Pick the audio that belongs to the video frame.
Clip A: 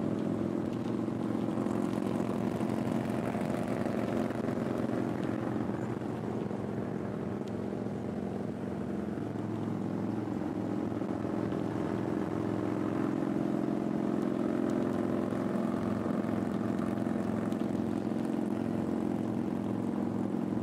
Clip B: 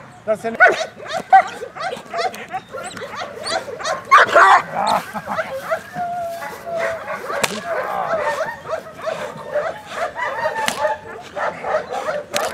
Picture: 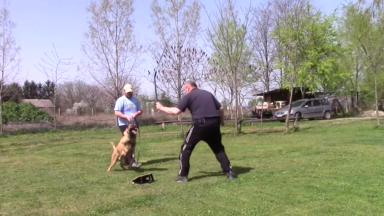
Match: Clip B